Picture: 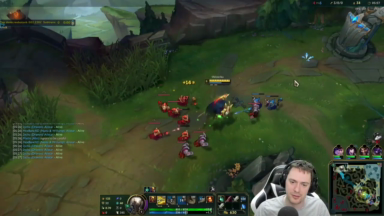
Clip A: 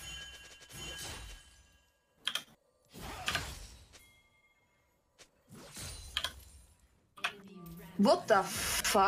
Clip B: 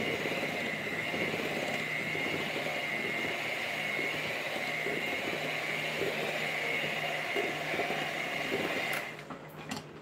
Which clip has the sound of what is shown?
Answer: A